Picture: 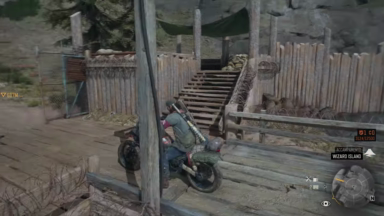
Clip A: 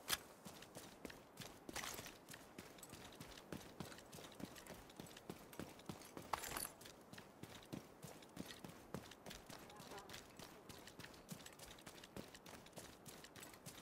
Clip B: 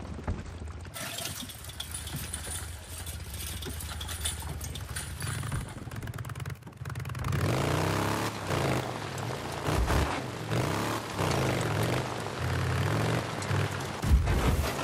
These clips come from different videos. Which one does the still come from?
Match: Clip B